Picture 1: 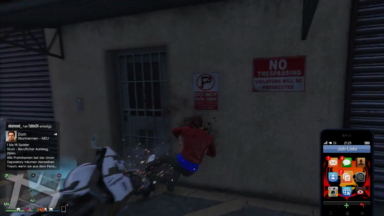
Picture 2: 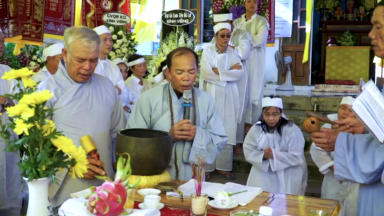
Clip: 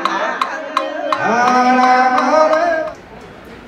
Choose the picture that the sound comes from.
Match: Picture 2